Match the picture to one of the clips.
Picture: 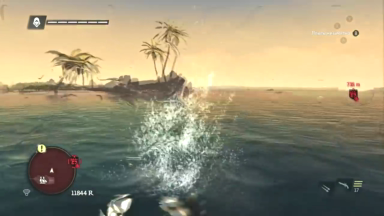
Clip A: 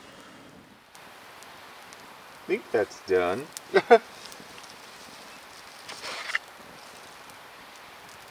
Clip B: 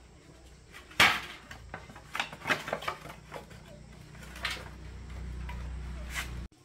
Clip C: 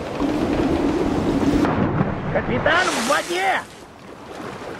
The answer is C